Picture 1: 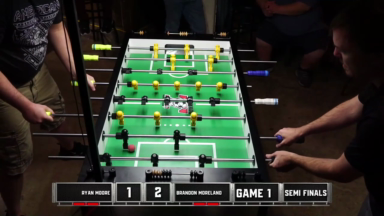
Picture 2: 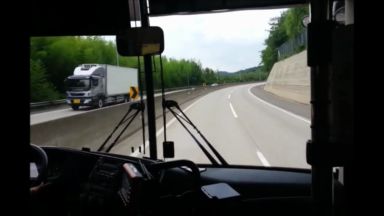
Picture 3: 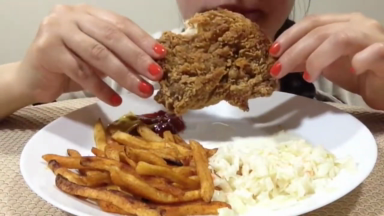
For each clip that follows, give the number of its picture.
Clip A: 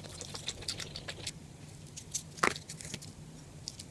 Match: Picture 3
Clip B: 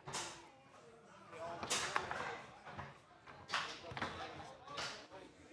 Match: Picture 1